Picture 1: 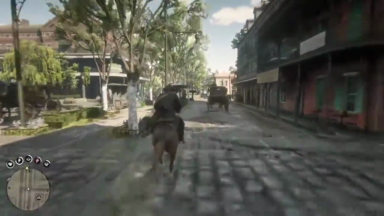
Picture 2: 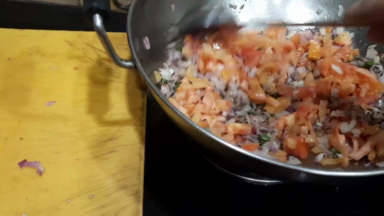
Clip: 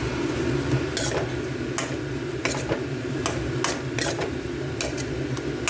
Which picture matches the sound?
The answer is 2